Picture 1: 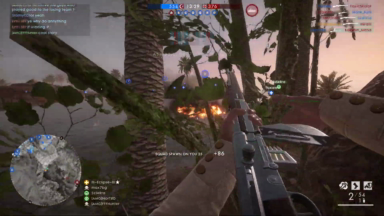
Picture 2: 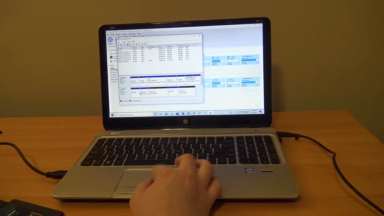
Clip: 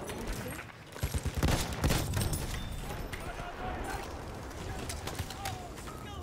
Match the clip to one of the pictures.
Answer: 1